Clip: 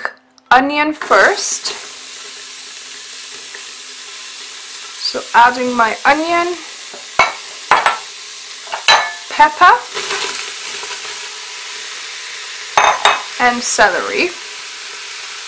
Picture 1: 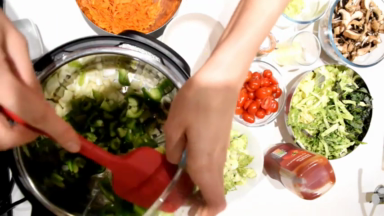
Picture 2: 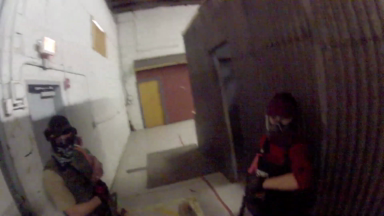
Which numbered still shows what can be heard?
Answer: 1